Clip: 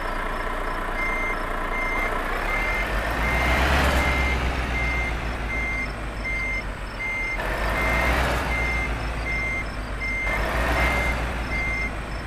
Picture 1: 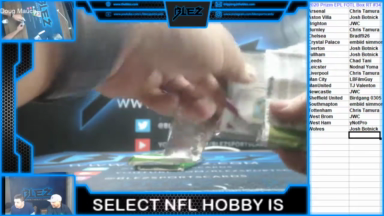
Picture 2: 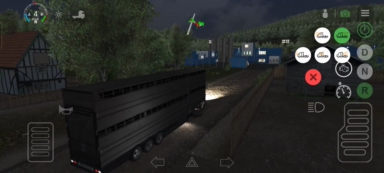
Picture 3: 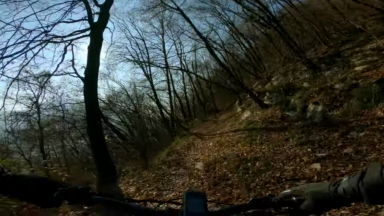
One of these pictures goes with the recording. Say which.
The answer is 2